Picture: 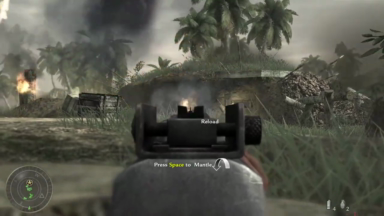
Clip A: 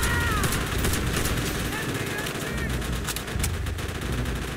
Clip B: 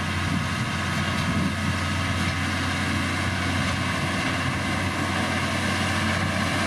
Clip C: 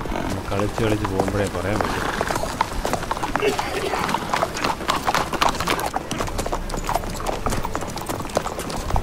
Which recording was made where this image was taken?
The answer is A